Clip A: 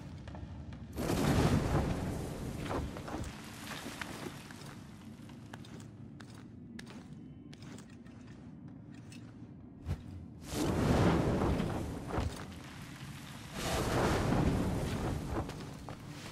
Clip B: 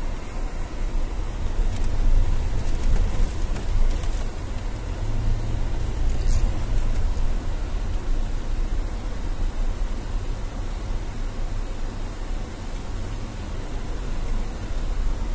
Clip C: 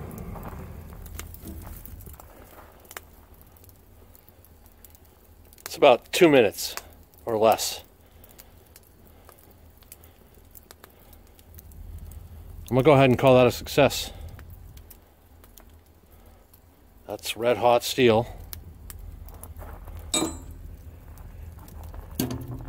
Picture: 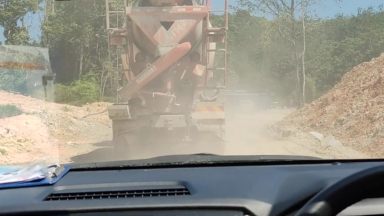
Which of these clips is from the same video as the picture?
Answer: B